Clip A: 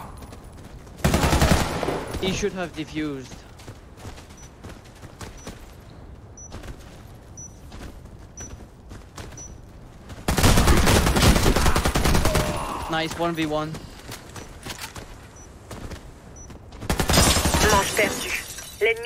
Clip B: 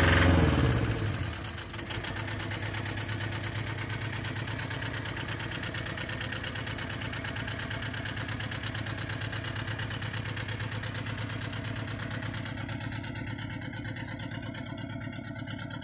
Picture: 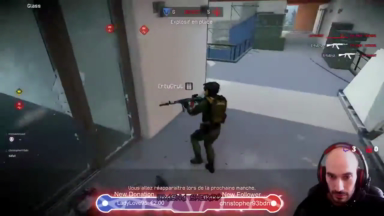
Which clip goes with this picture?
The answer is A